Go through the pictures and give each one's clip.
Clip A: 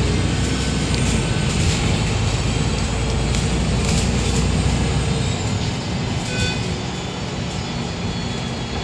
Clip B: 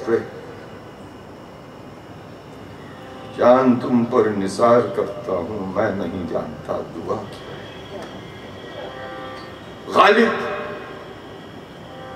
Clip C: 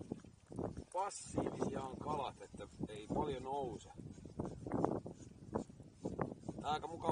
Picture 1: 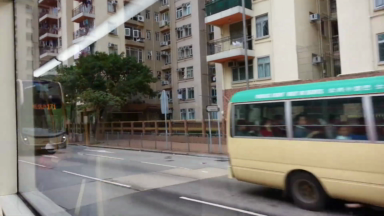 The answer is A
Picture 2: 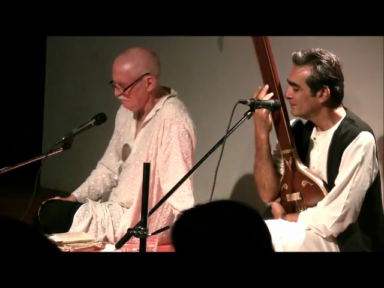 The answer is B